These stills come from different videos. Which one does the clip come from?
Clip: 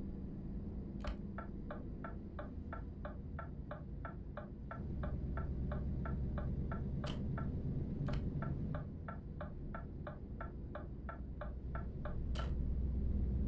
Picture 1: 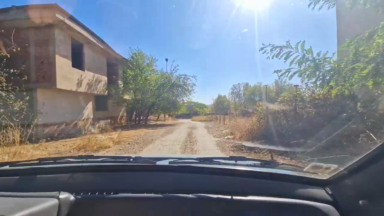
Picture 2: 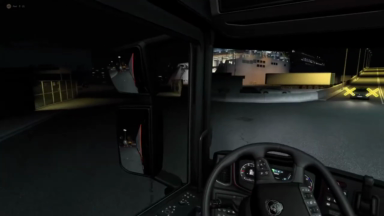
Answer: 2